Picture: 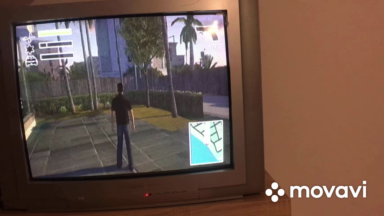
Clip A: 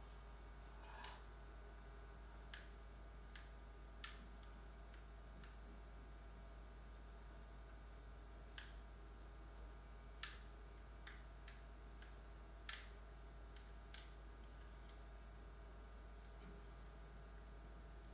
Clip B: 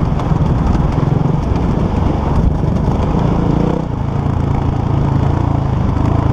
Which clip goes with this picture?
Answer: A